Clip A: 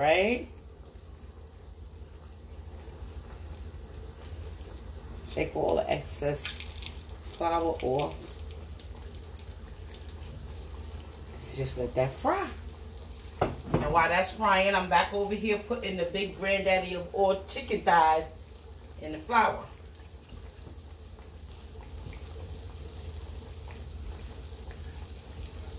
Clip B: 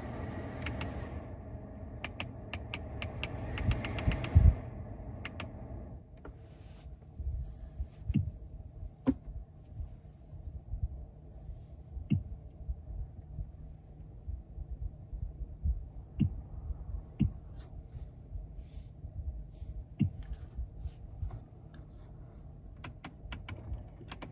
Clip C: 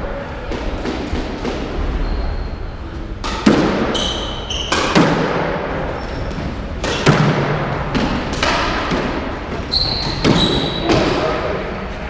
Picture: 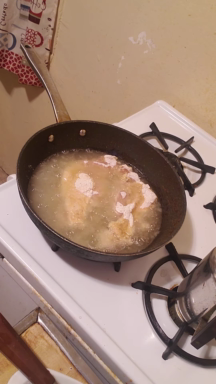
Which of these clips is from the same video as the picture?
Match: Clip A